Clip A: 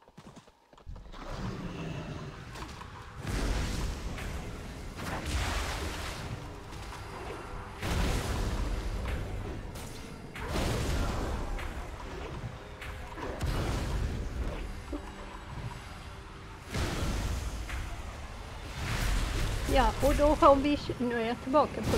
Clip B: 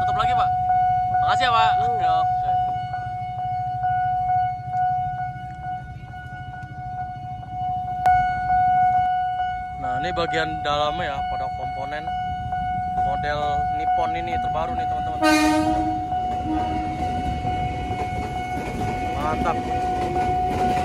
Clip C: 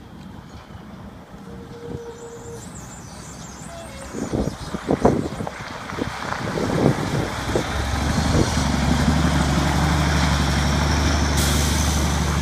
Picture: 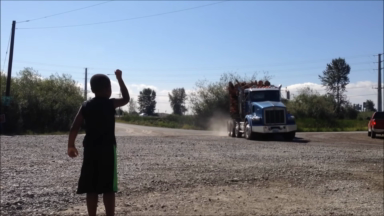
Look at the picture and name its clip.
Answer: C